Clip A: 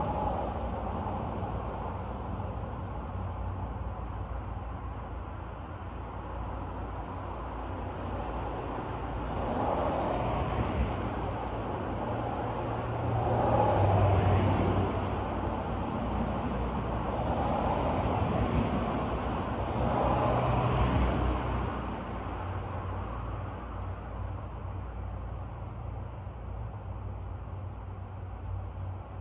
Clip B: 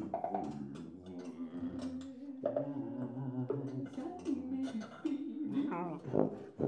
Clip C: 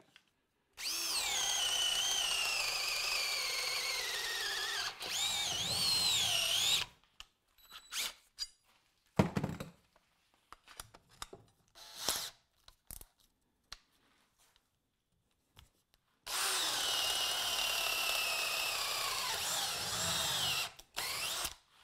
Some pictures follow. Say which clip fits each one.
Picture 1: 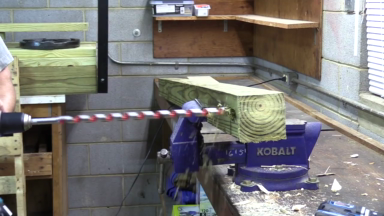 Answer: C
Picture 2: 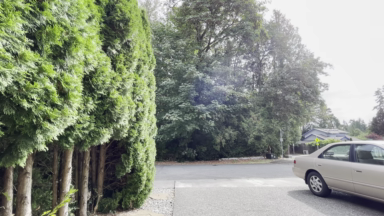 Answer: A